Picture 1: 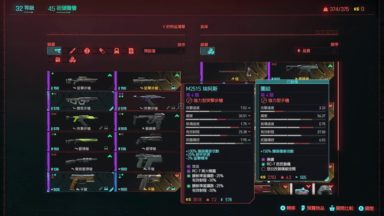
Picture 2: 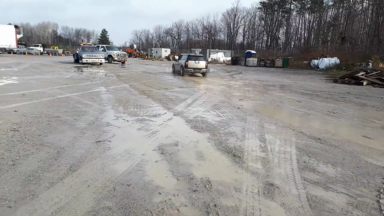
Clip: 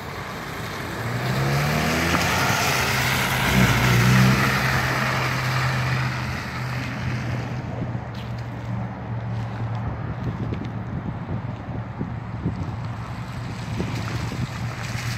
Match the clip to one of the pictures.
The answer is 2